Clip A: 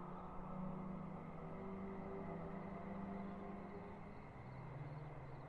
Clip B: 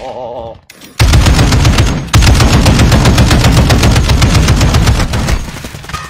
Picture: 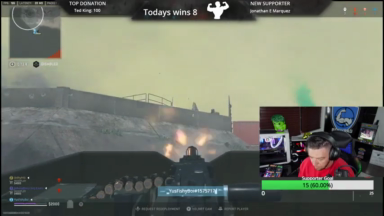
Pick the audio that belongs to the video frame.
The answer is B